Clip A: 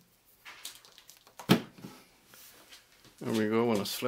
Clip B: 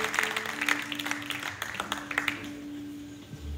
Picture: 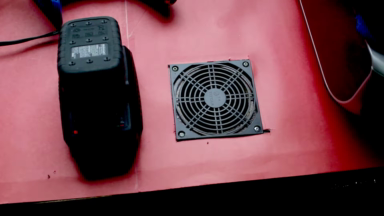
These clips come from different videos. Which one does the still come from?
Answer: A